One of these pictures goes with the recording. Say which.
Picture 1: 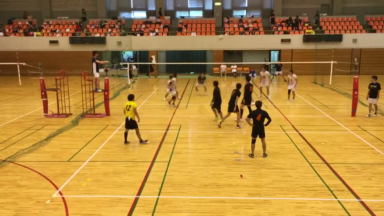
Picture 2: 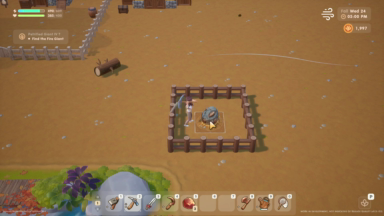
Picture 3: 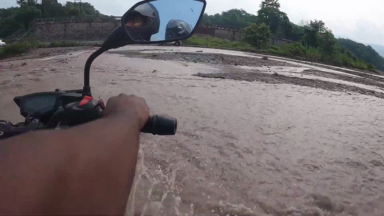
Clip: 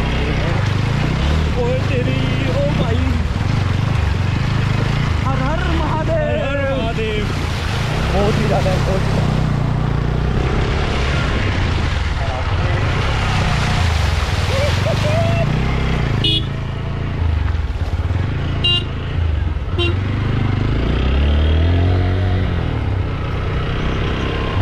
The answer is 3